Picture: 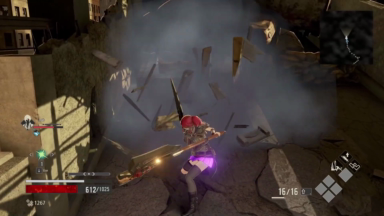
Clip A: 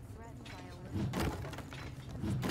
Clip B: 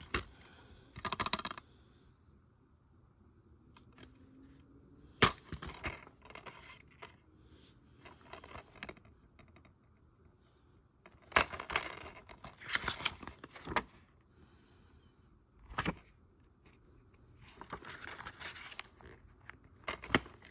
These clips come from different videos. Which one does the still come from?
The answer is A